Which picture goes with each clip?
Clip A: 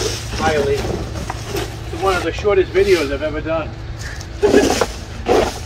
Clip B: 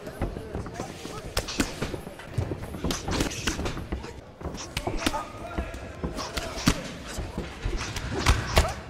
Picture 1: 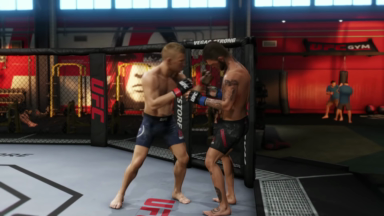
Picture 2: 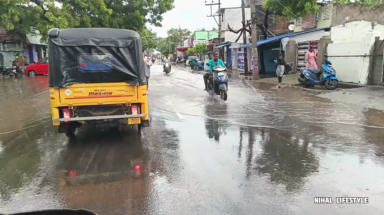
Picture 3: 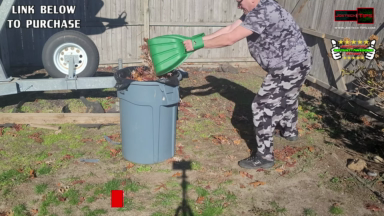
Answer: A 3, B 1